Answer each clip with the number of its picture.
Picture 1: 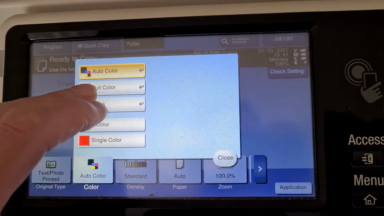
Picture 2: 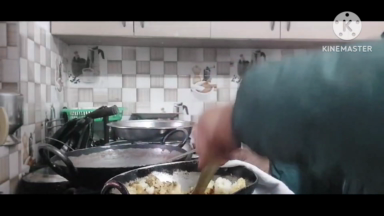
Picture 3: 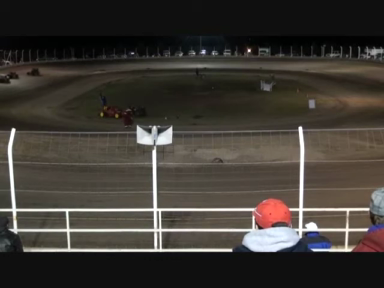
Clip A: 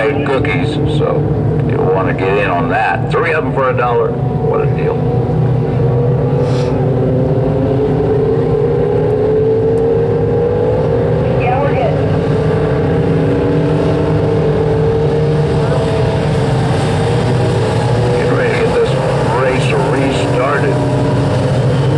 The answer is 3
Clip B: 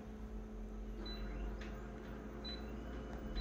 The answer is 1